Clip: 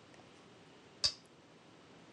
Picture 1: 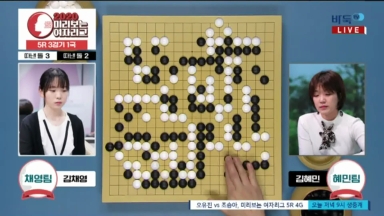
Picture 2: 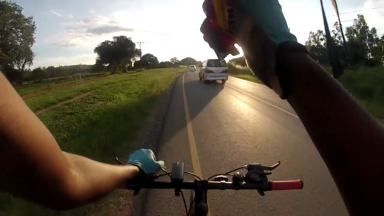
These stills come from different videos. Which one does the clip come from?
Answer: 1